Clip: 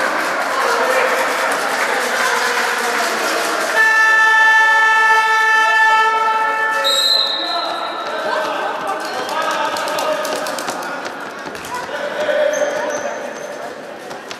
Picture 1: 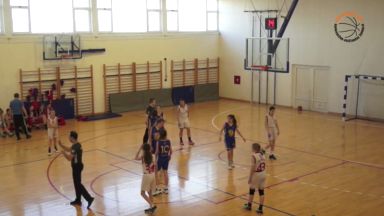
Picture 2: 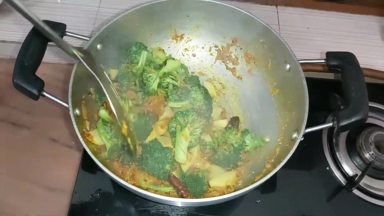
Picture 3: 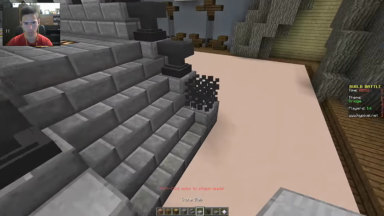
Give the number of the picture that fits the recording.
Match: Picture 1